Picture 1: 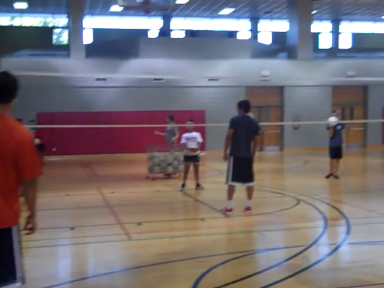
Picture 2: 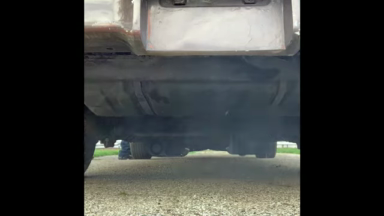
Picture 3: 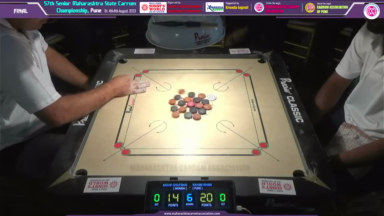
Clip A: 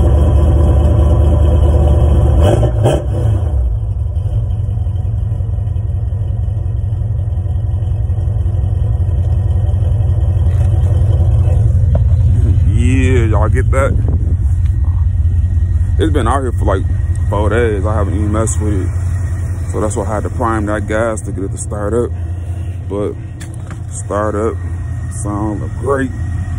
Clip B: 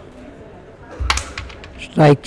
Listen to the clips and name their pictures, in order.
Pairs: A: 2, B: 3